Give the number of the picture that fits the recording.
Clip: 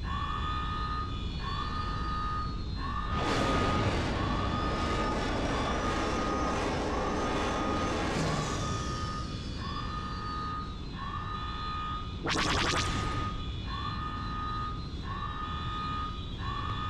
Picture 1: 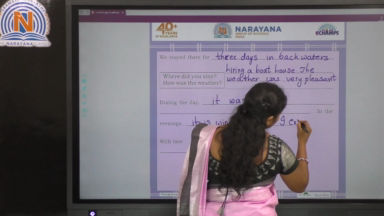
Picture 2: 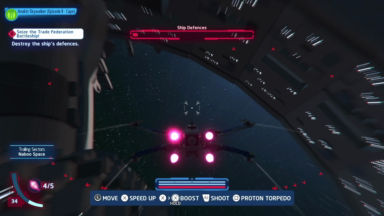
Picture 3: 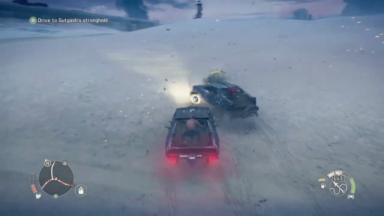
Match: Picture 2